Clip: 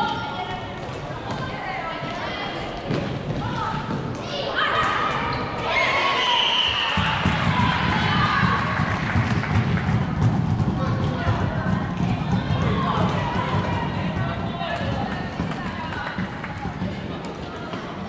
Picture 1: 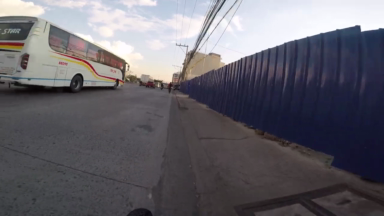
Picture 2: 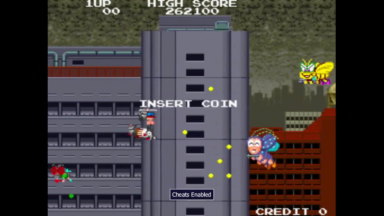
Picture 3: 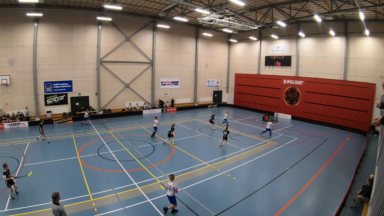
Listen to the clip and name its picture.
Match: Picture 3